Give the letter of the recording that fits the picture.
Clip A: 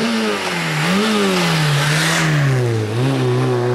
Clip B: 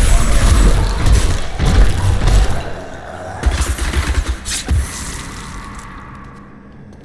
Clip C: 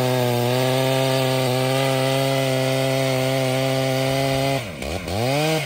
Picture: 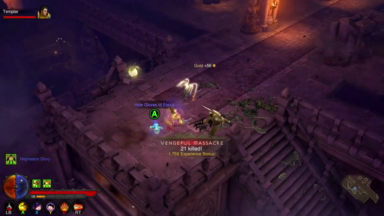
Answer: B